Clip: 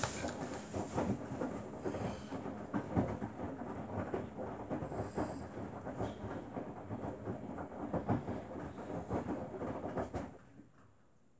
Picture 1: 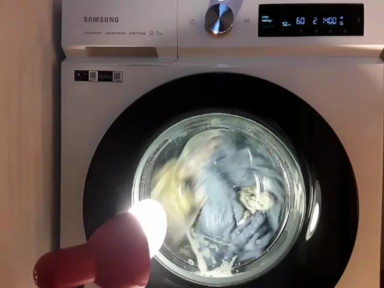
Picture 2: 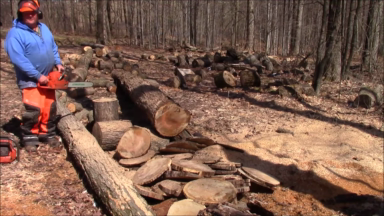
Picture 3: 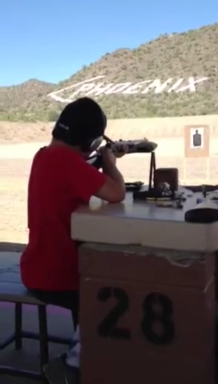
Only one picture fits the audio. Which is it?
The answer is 1